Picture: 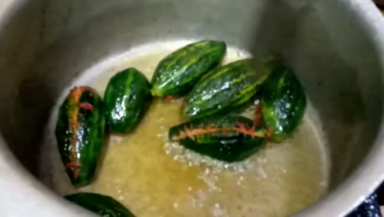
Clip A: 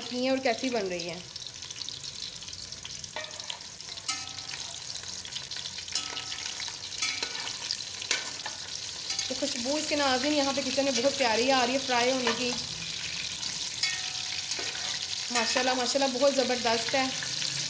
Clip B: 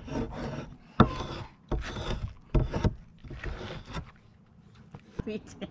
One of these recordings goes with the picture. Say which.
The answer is A